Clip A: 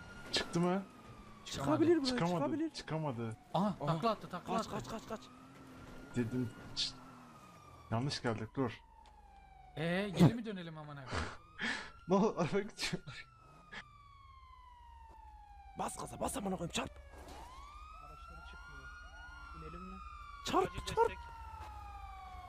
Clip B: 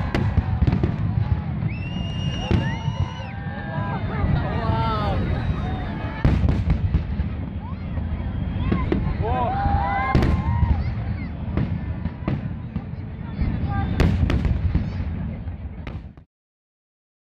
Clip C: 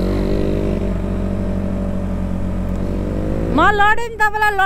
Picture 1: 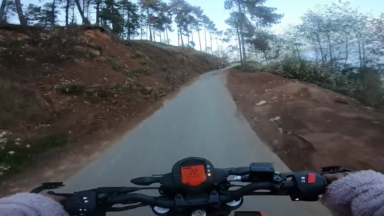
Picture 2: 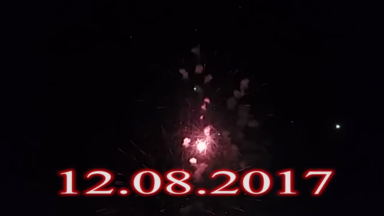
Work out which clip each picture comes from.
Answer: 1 C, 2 B